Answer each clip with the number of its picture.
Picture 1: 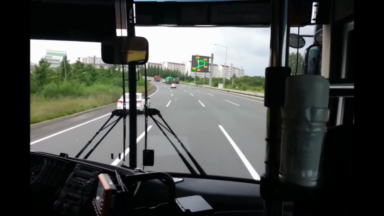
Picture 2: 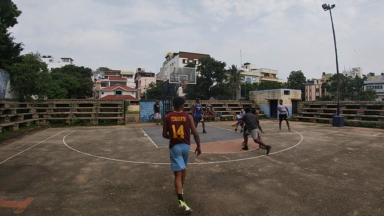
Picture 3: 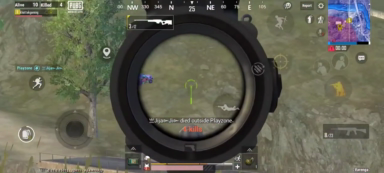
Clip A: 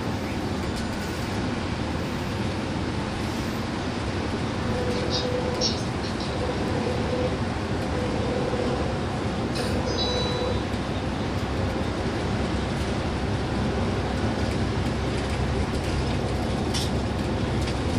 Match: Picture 1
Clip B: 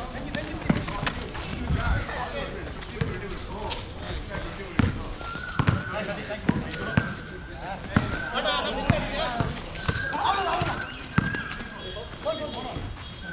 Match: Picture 2